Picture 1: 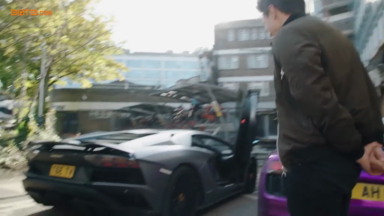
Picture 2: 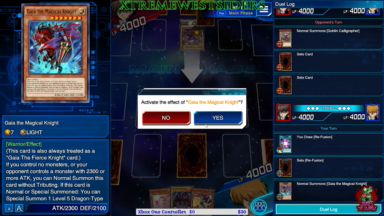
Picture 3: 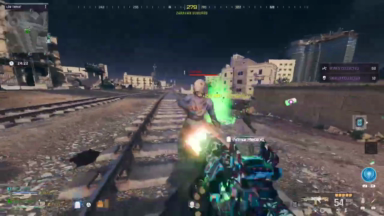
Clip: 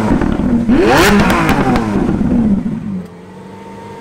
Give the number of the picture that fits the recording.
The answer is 1